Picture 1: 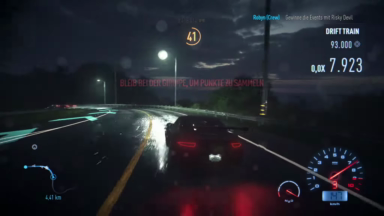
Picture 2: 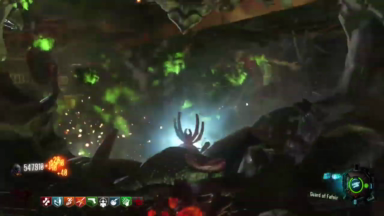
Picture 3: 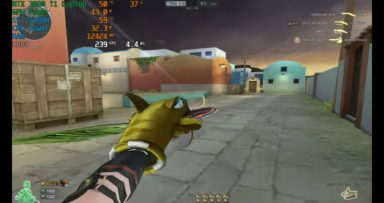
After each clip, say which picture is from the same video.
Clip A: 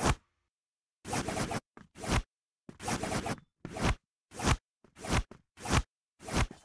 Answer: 3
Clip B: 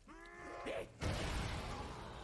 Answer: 2